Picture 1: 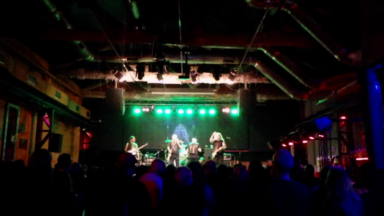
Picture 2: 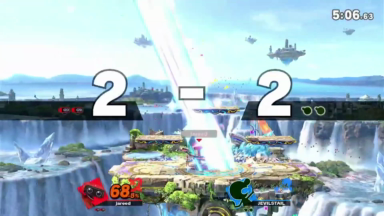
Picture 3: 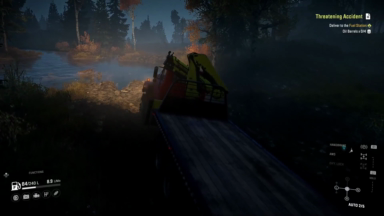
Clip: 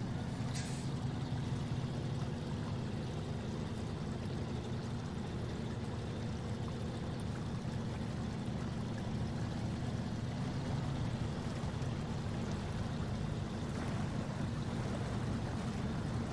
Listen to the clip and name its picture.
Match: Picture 3